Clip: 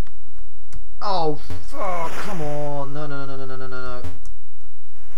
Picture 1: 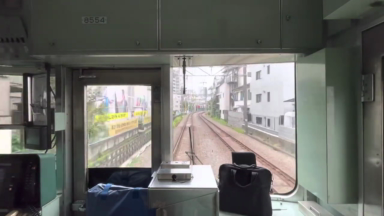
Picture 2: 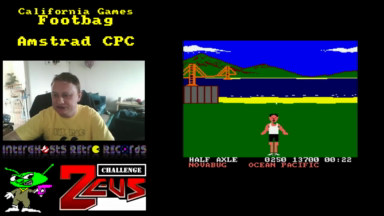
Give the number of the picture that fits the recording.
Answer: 2